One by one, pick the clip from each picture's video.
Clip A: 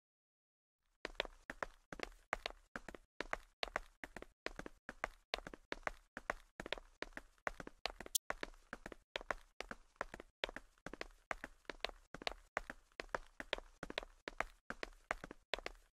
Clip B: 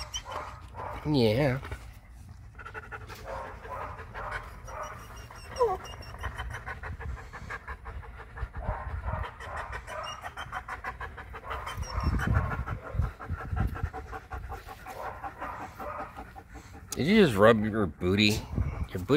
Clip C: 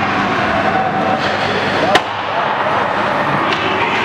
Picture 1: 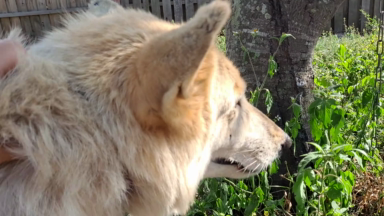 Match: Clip B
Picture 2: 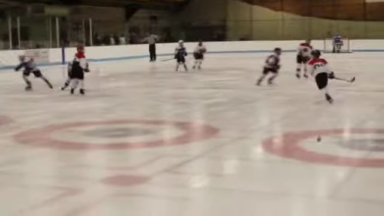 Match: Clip C